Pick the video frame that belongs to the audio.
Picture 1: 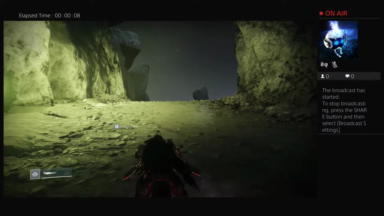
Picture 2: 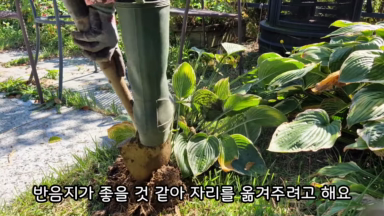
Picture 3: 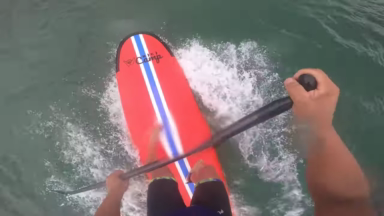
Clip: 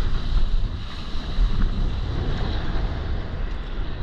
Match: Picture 3